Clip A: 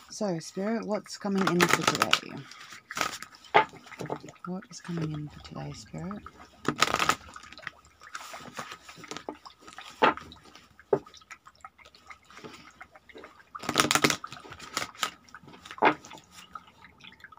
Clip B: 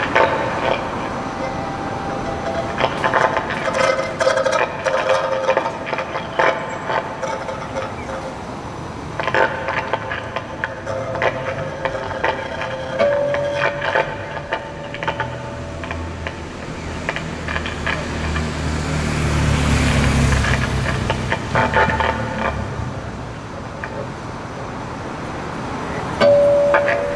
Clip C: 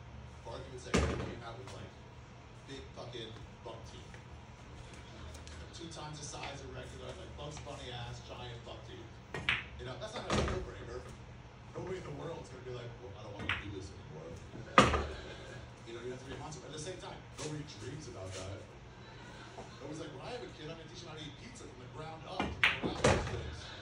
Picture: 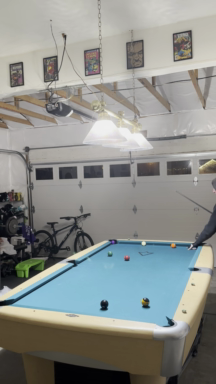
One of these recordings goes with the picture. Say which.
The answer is C